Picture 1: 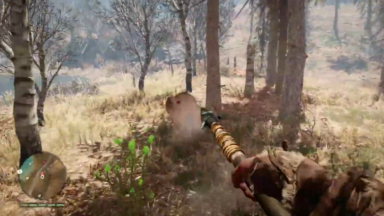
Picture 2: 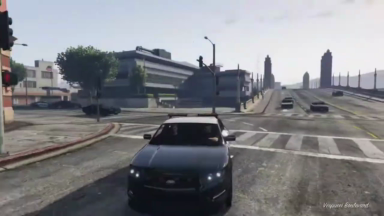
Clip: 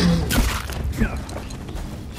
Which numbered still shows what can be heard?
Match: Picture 1